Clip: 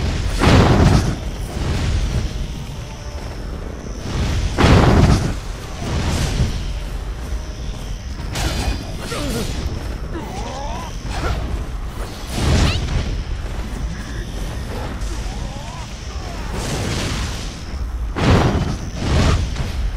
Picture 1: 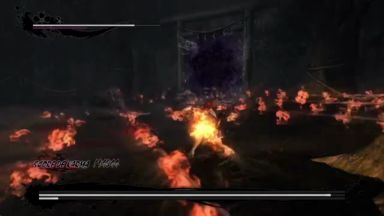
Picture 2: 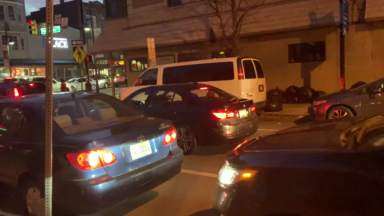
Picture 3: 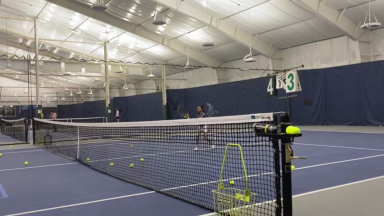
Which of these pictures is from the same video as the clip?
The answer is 1